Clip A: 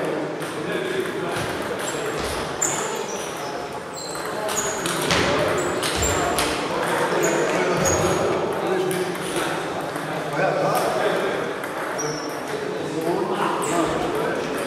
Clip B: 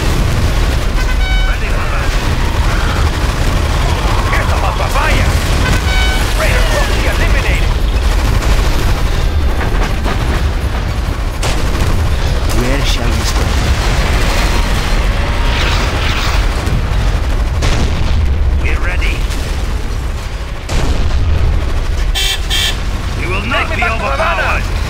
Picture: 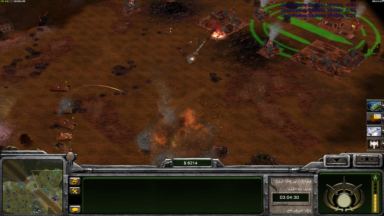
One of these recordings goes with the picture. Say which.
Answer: B